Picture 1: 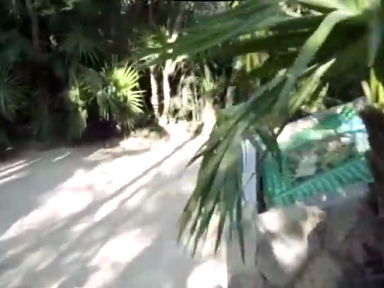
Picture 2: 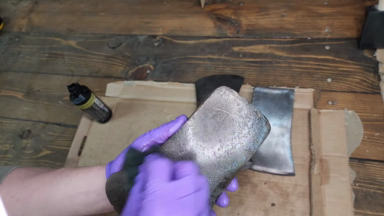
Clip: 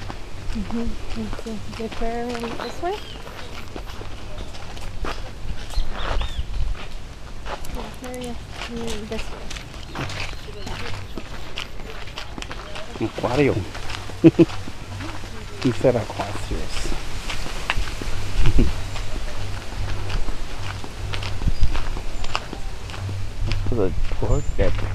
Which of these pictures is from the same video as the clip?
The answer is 1